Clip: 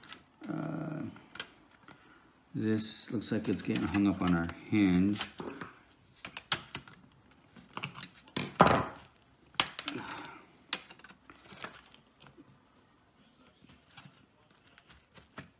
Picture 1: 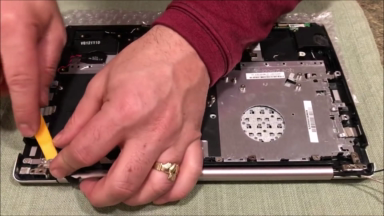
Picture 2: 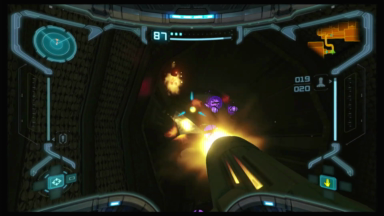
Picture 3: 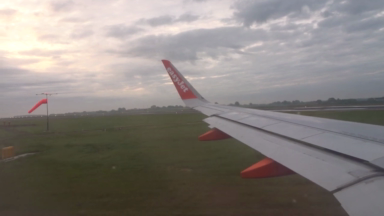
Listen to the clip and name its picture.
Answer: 1